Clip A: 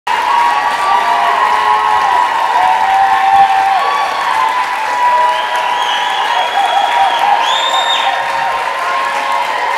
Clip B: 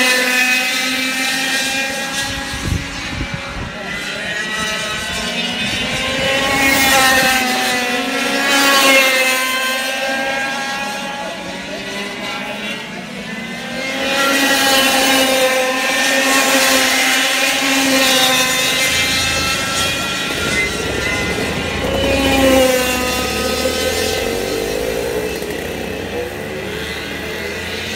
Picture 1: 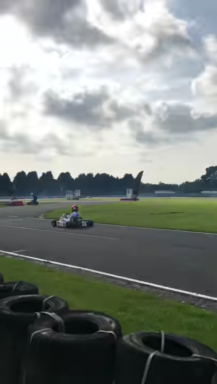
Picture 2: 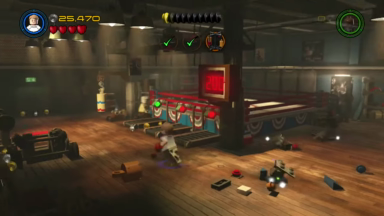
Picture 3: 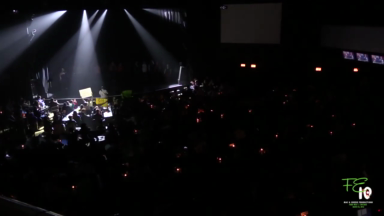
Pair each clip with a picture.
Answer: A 3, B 1